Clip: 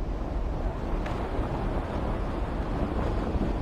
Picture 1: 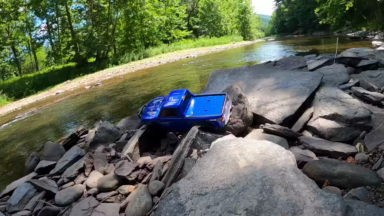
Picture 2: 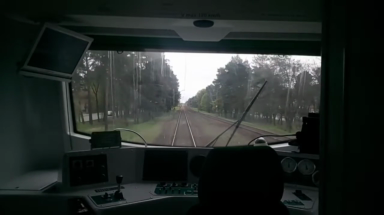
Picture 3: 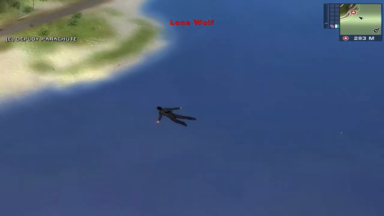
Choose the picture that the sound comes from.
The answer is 3